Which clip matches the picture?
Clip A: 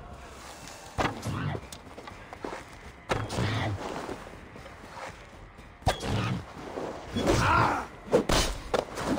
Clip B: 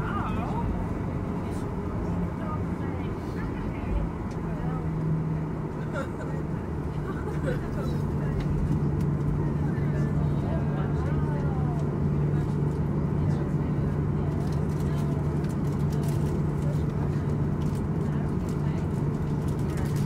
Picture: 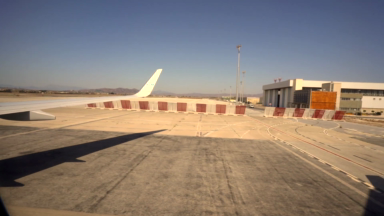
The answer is B